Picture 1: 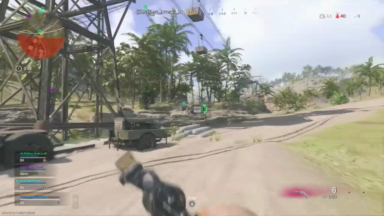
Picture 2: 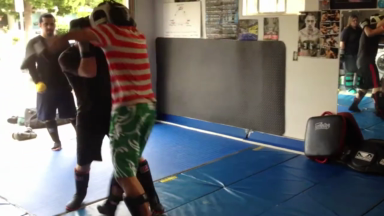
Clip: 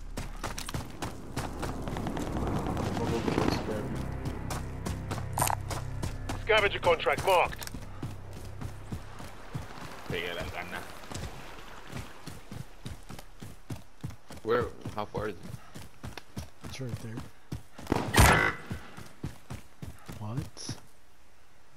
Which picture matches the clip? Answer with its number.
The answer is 1